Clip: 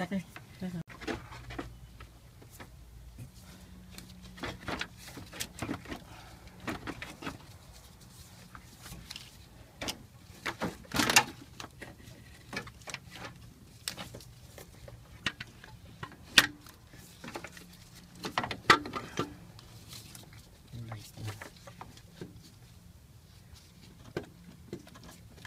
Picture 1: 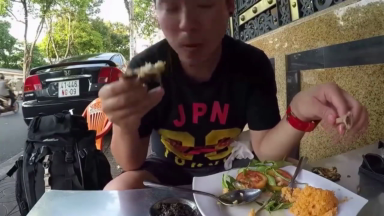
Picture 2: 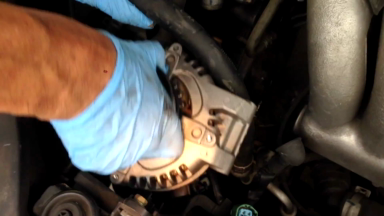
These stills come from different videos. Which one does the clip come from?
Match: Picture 2